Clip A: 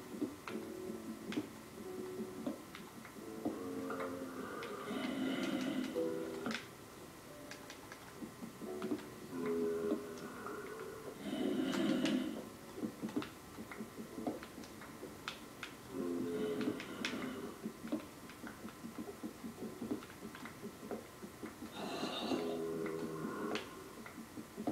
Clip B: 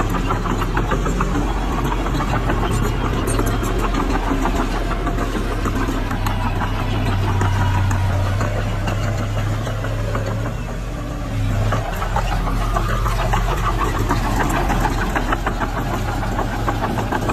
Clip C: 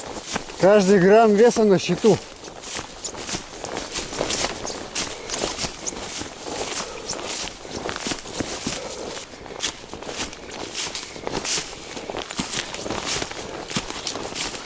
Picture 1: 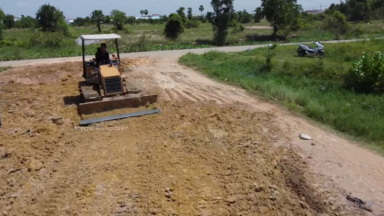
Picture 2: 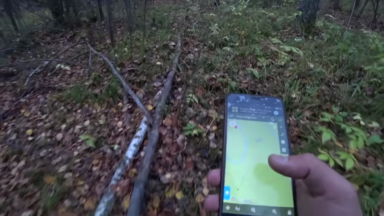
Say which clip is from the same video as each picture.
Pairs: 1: B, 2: C